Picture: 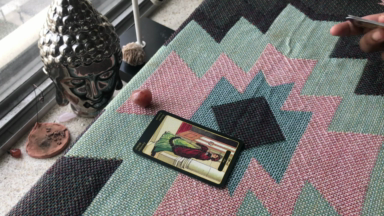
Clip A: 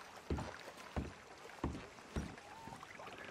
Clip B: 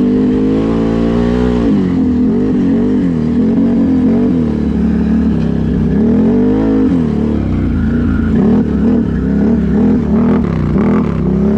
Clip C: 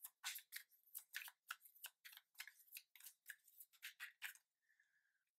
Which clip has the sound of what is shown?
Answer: C